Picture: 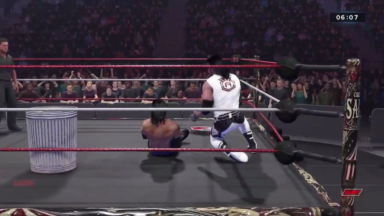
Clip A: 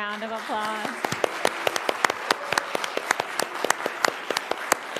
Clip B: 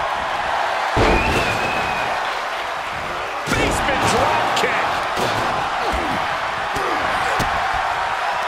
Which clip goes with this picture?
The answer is B